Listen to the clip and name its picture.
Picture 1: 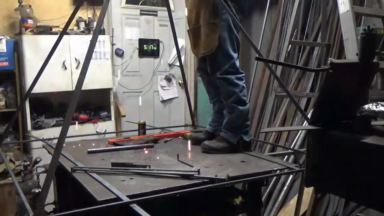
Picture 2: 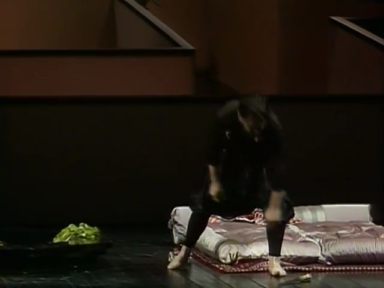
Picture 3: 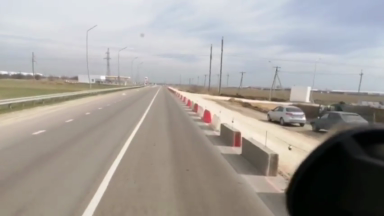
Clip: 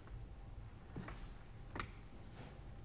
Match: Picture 2